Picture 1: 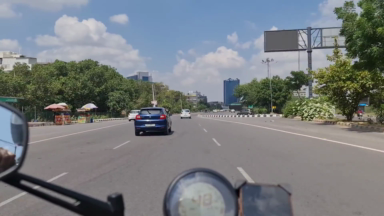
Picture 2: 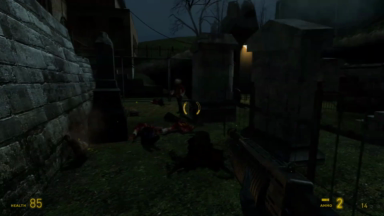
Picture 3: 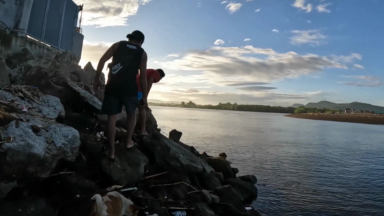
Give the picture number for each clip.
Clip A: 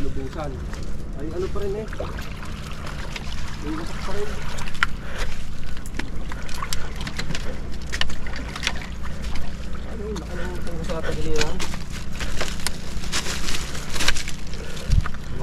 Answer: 3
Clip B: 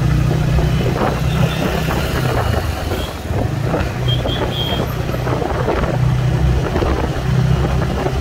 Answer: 1